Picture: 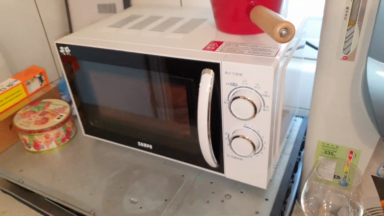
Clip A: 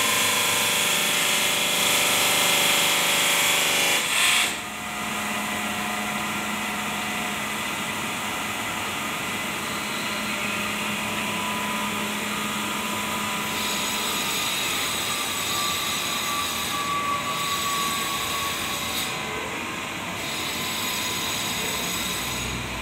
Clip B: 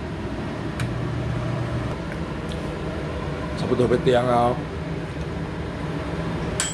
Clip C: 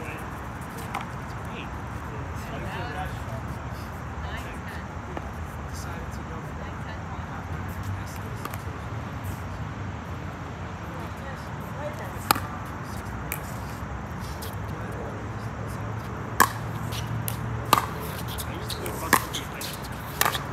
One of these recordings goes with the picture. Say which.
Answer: B